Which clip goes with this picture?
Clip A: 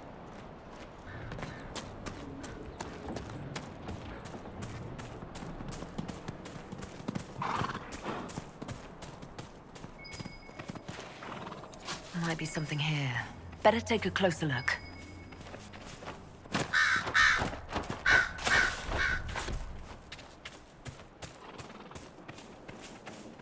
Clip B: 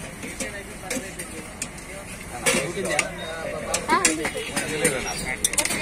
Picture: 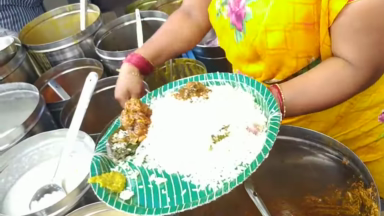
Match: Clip B